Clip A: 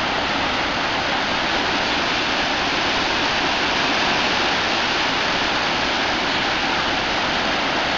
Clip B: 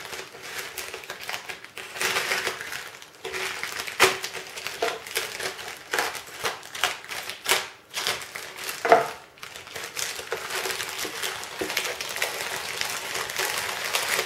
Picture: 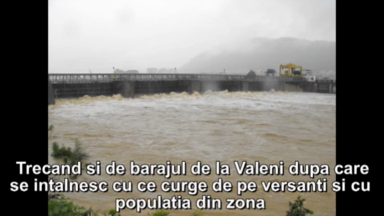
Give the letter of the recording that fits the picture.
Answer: A